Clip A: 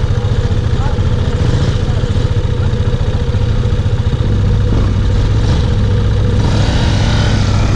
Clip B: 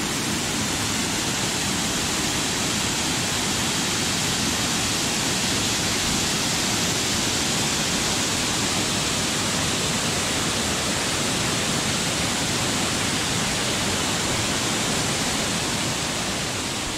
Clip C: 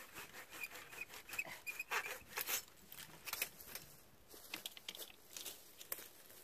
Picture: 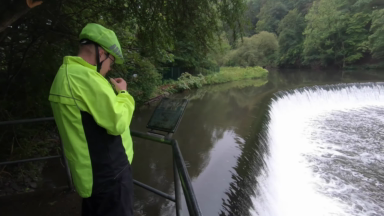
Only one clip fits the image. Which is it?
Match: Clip B